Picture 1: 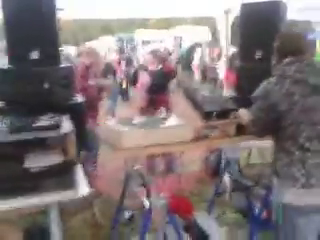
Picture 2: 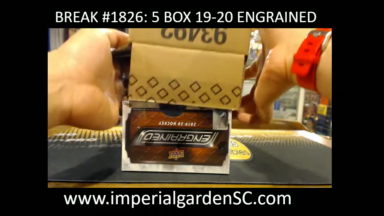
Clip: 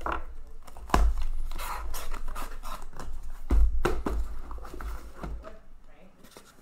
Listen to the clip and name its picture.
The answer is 2